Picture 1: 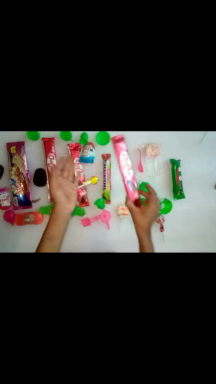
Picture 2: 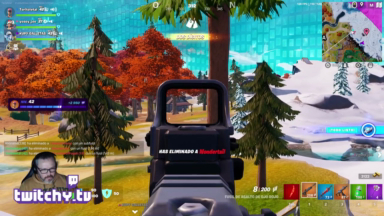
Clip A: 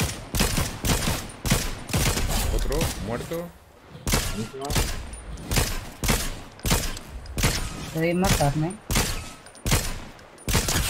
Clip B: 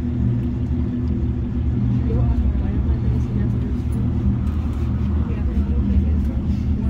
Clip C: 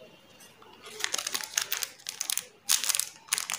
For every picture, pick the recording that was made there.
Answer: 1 C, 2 A